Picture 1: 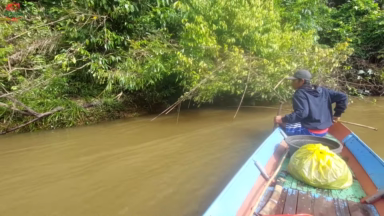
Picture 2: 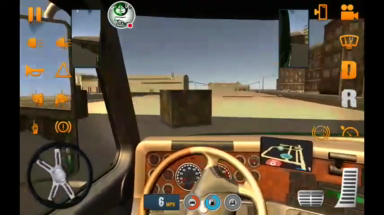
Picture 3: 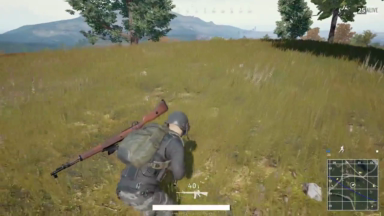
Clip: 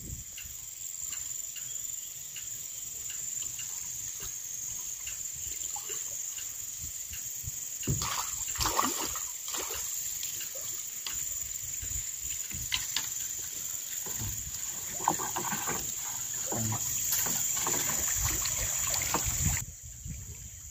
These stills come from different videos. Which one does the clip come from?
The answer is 1